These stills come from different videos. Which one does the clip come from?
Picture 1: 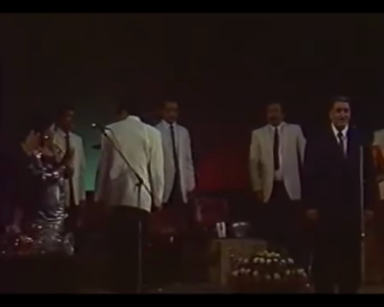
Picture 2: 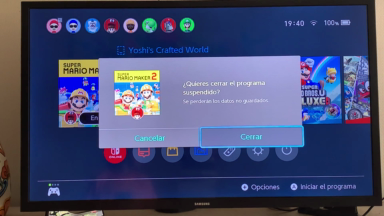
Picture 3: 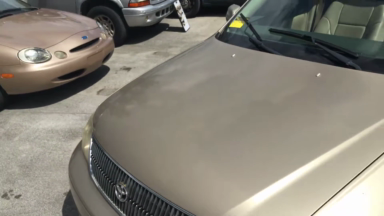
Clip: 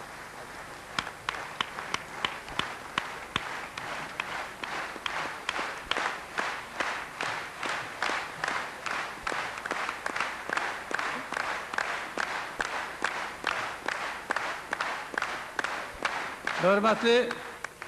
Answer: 1